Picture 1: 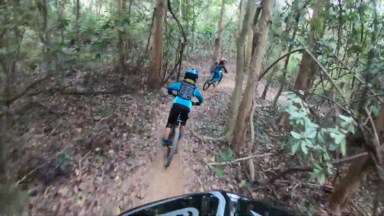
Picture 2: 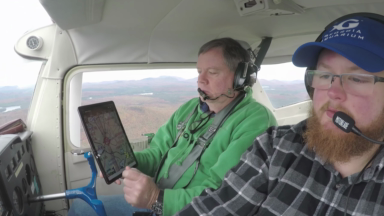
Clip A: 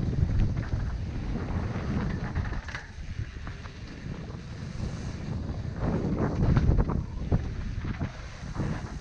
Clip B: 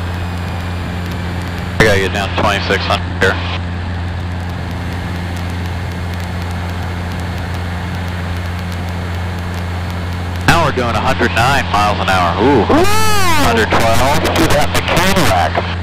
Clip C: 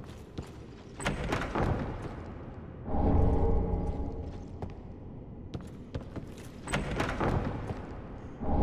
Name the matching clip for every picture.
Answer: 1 A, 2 B